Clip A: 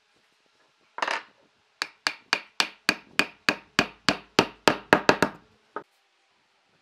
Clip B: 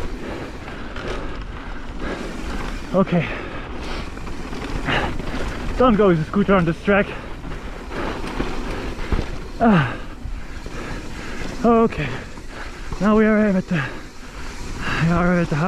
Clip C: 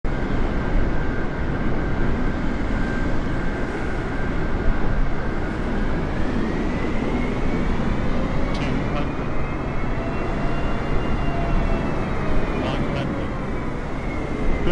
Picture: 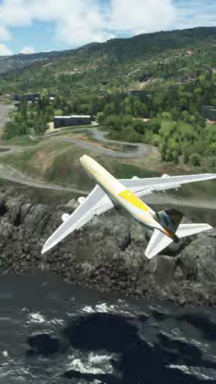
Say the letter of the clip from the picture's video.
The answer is C